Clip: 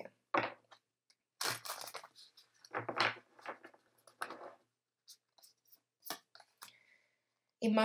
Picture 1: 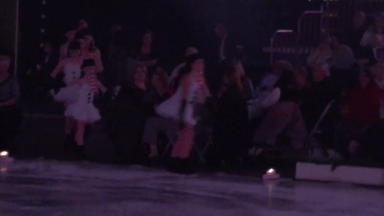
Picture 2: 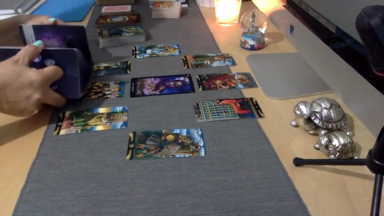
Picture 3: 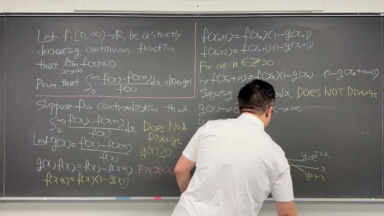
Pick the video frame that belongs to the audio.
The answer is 2